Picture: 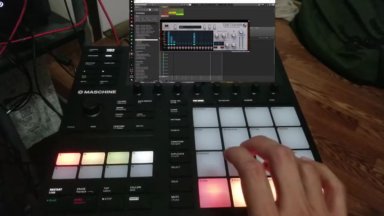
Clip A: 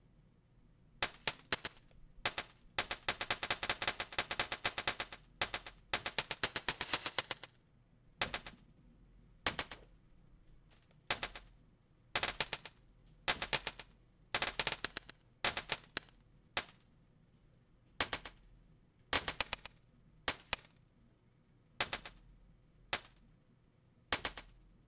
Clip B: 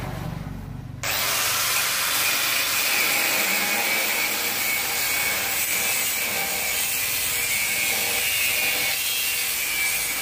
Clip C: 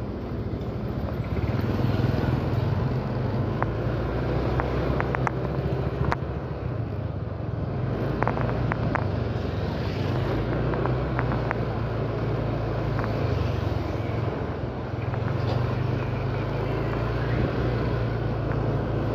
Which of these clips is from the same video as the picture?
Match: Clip A